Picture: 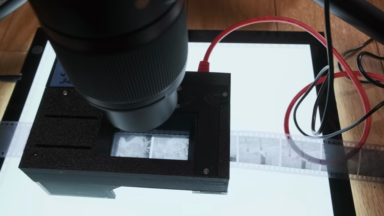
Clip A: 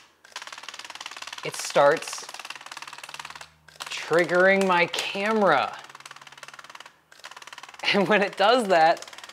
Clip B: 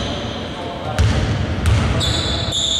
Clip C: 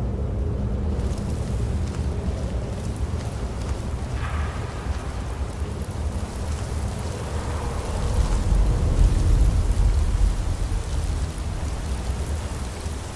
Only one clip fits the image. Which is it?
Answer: A